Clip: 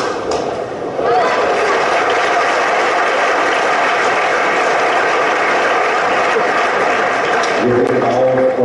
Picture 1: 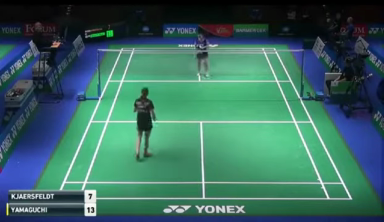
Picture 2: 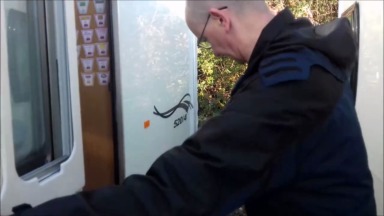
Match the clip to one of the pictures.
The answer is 1